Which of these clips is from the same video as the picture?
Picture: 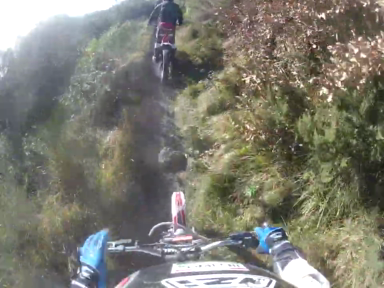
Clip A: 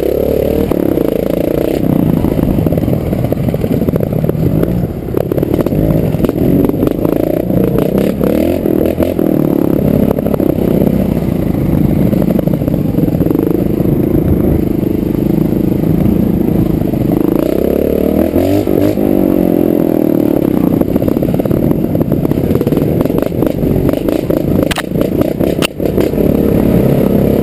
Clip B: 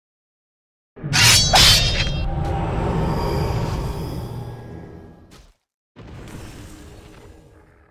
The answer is A